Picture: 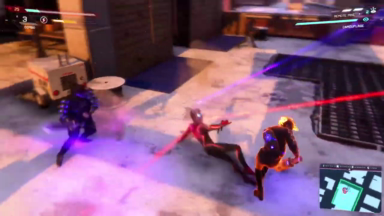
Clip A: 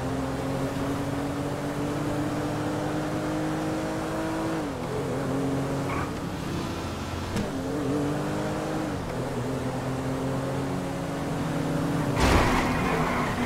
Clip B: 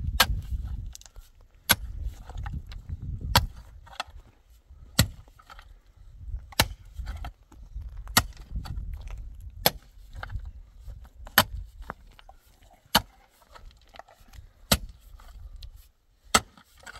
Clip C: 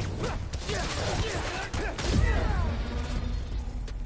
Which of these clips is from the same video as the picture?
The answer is C